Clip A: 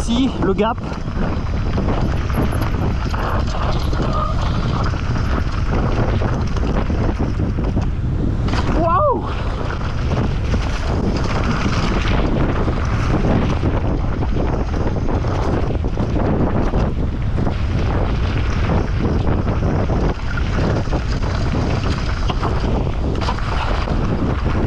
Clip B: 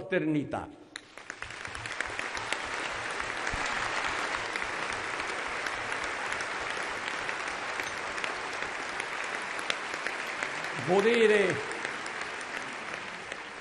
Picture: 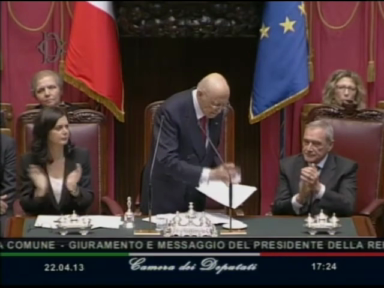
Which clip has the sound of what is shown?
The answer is B